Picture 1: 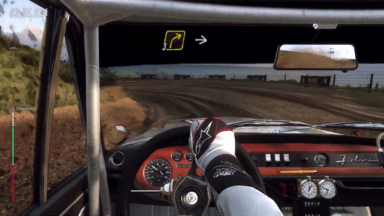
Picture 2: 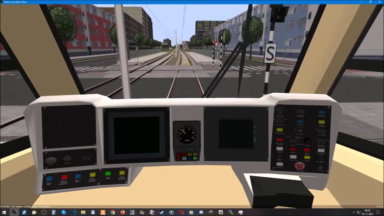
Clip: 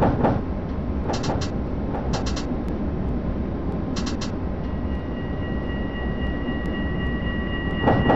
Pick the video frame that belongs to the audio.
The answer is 2